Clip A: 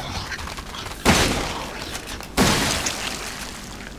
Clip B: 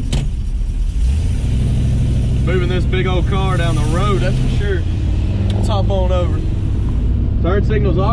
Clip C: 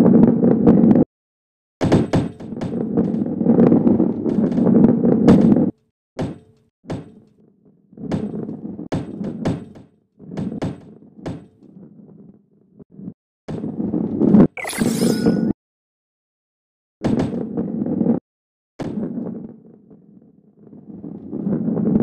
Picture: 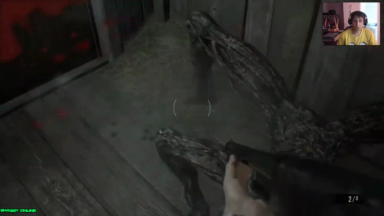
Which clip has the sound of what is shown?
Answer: A